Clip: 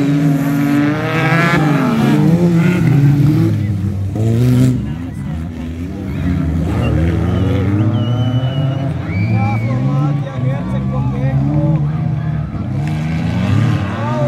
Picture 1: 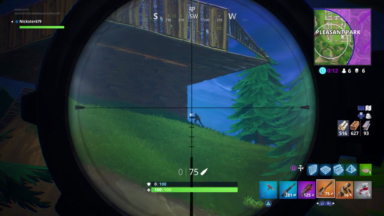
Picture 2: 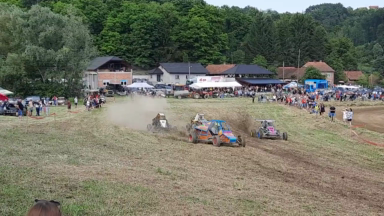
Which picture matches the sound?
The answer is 2